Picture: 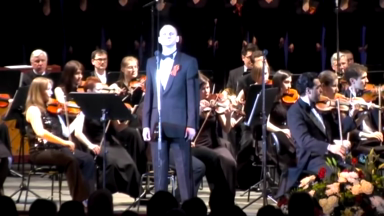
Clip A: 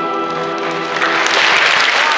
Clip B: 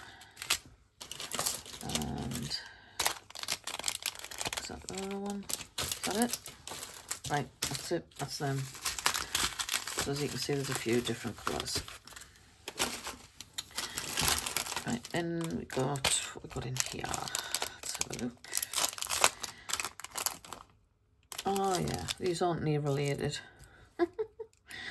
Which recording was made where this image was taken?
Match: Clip A